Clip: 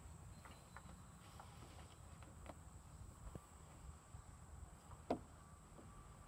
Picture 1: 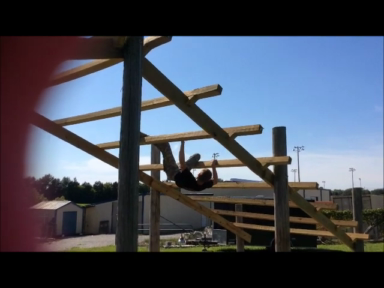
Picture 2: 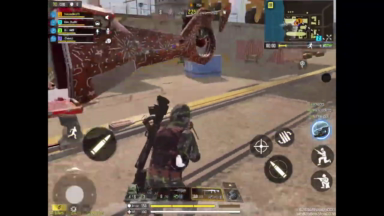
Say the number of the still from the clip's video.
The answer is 1